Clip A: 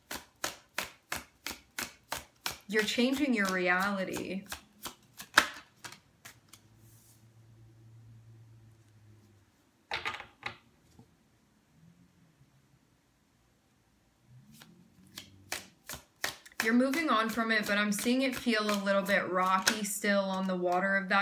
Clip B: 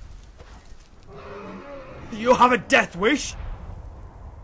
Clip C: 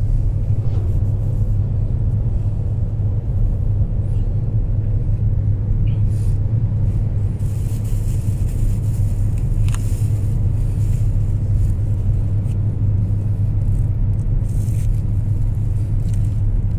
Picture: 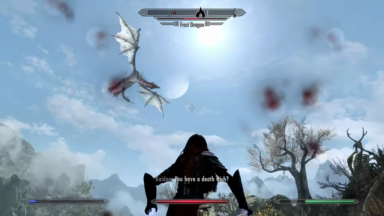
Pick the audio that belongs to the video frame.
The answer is B